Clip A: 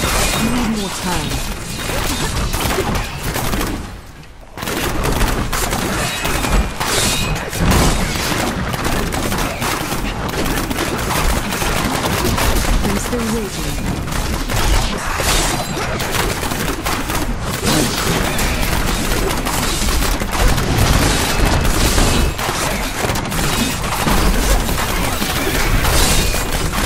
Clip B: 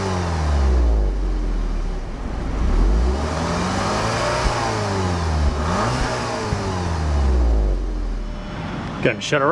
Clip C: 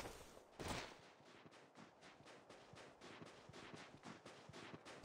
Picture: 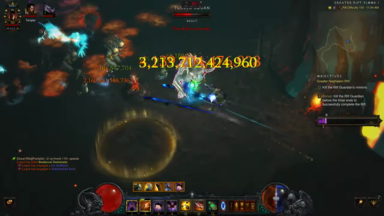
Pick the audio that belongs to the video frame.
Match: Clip A